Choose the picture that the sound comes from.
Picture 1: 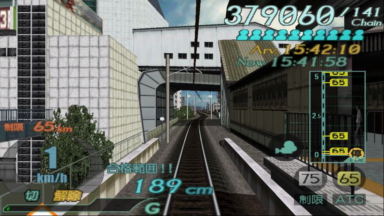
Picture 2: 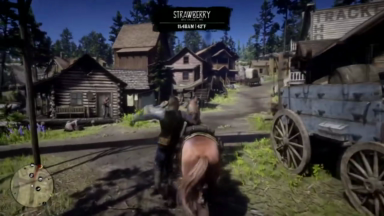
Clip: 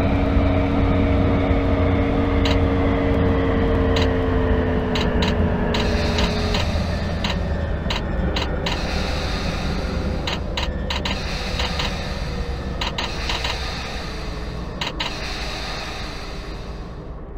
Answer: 1